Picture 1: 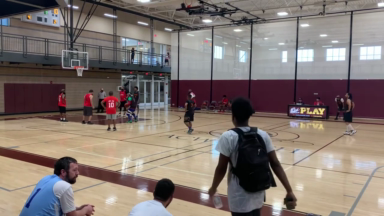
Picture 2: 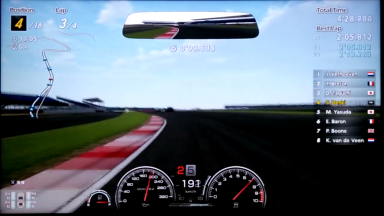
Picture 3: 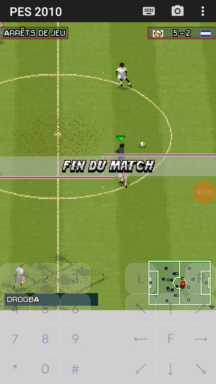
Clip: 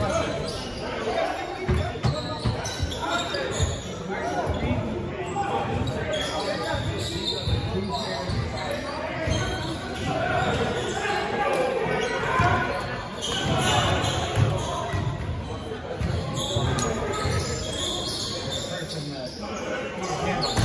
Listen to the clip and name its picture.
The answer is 1